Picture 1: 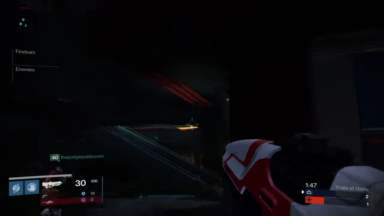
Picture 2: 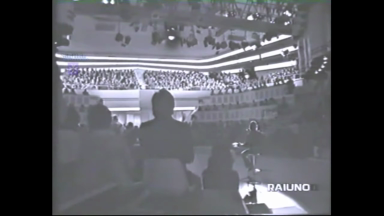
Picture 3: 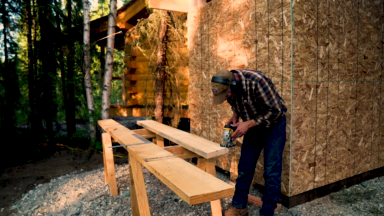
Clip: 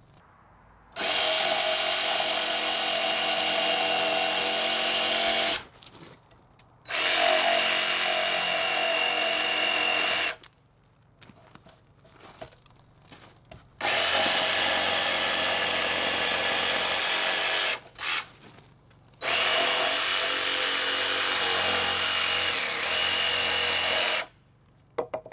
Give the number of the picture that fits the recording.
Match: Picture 3